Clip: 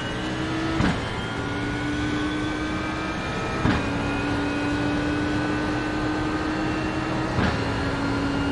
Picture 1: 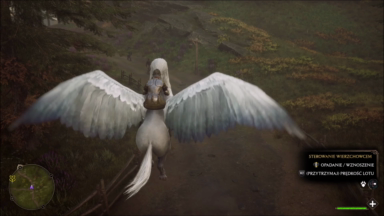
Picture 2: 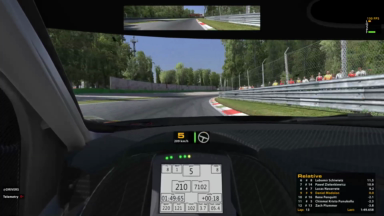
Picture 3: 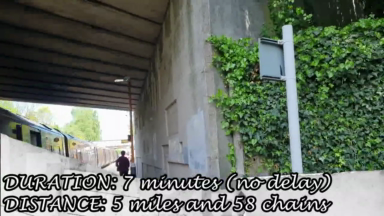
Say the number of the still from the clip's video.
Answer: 2